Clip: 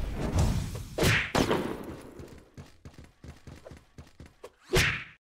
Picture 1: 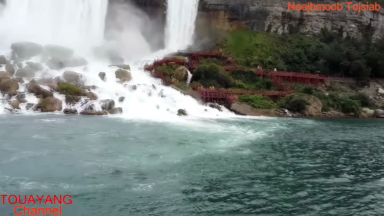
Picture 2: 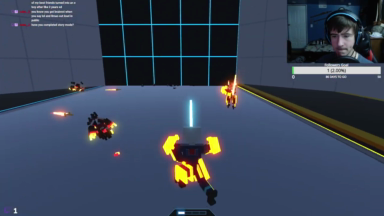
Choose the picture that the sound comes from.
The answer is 2